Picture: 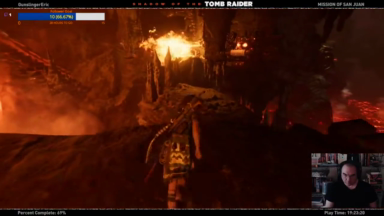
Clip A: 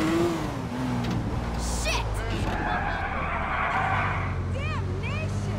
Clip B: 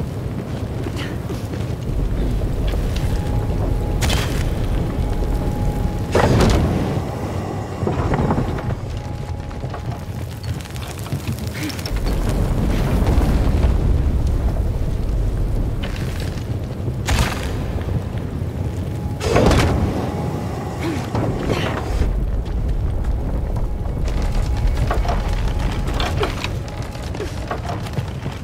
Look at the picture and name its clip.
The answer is B